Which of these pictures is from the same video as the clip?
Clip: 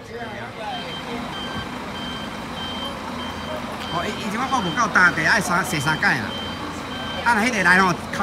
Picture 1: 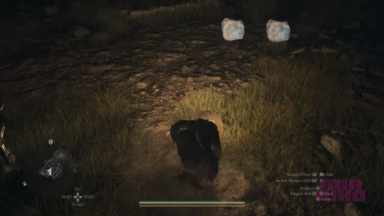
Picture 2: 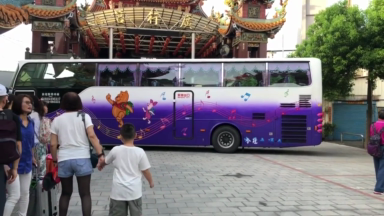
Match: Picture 2